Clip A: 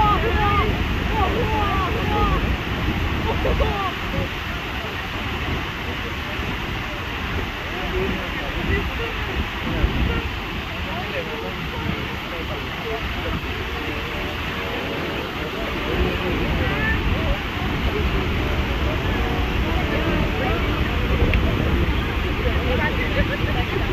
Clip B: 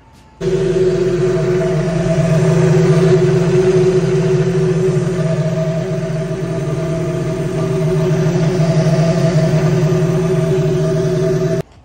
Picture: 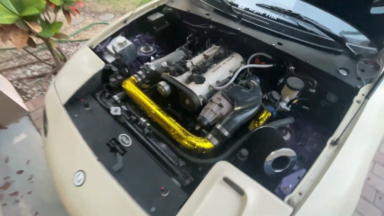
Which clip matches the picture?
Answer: B